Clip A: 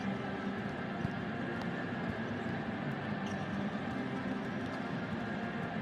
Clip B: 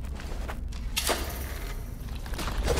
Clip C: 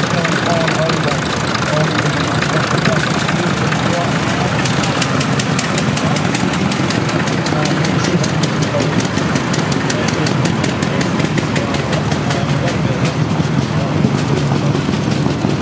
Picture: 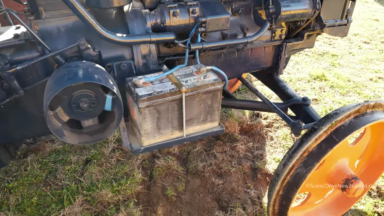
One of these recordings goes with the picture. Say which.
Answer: C